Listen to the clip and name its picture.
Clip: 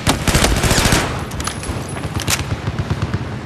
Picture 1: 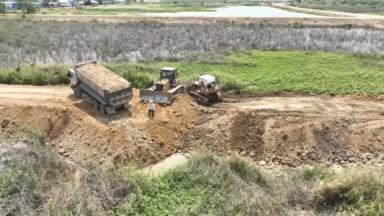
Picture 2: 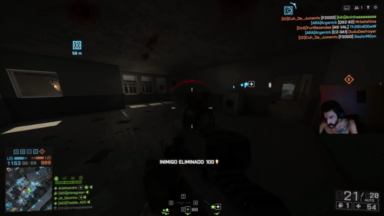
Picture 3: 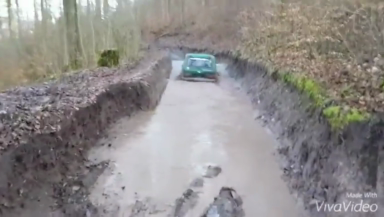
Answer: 2